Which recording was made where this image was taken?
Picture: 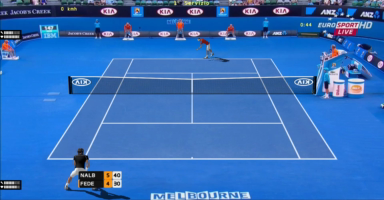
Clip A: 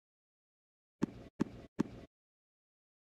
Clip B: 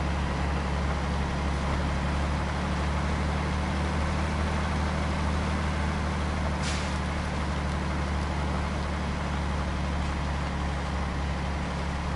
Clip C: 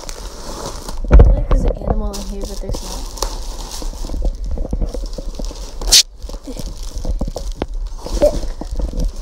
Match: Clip A